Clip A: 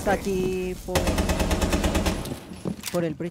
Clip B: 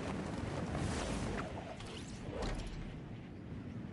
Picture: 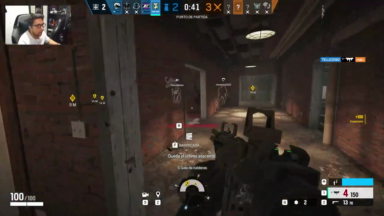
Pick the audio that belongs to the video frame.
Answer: A